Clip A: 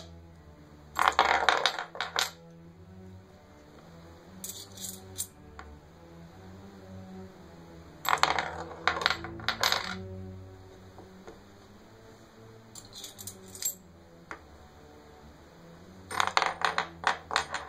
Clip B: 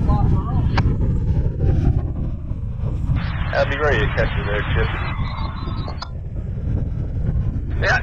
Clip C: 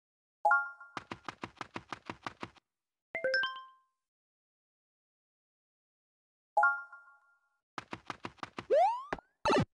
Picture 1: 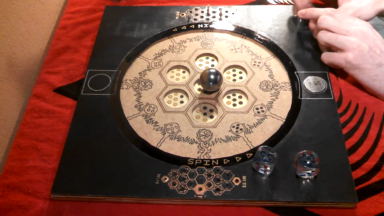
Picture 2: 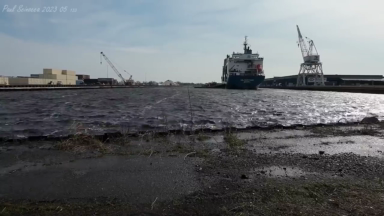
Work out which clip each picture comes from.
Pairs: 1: A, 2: B